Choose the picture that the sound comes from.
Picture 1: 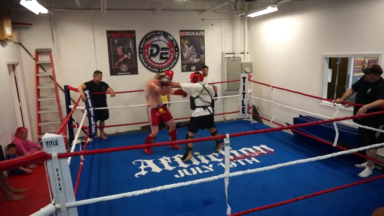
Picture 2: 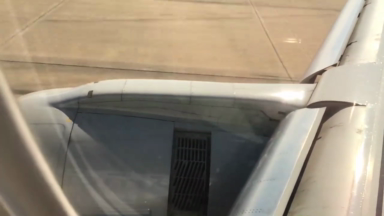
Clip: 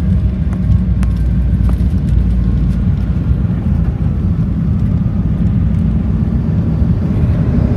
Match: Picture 2